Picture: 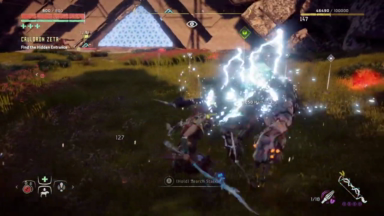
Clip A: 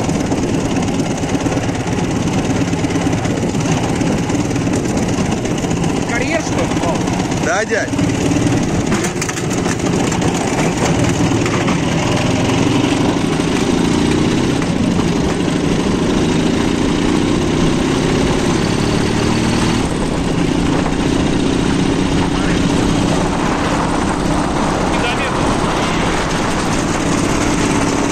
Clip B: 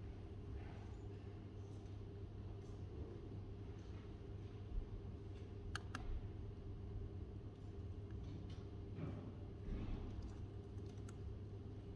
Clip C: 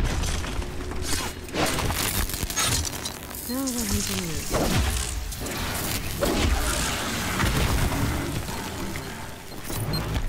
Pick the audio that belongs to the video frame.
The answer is C